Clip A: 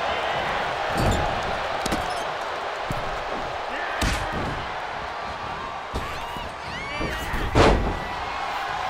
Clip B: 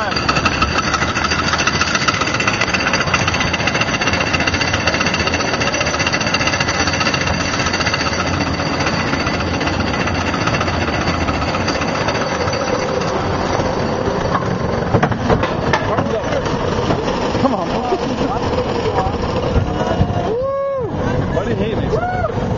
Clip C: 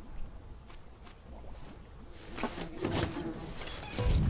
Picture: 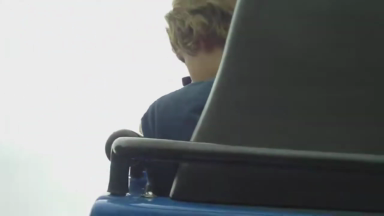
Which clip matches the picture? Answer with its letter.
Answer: B